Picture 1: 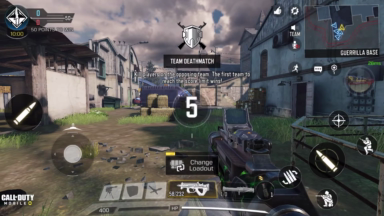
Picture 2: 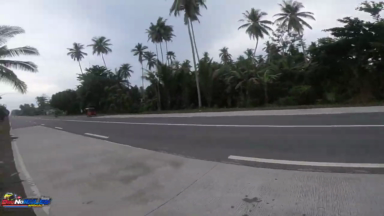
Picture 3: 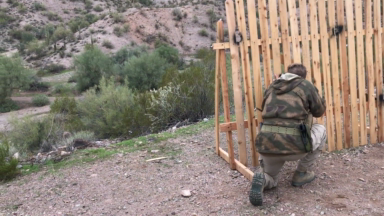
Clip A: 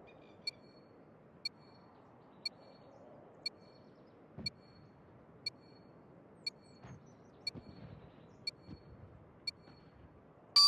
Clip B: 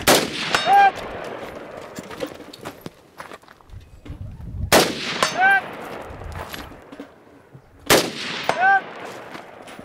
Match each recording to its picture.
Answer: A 1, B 3